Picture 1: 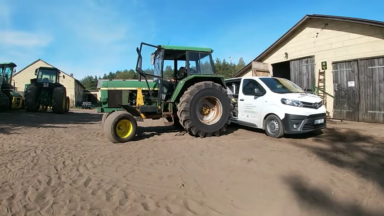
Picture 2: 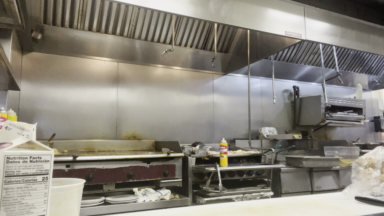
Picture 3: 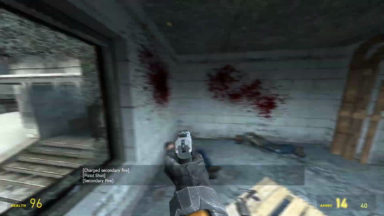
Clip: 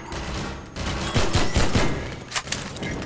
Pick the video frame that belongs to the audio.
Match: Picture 3